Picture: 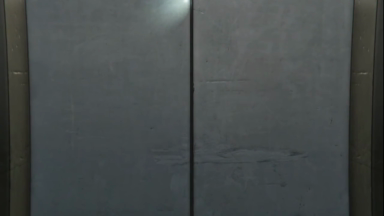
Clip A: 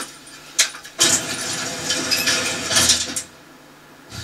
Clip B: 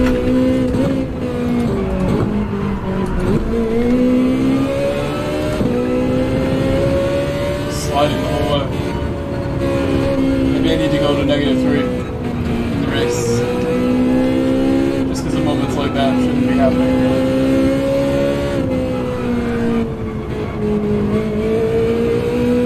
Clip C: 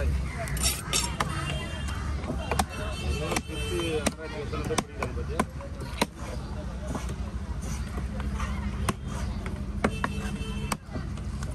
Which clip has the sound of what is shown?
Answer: A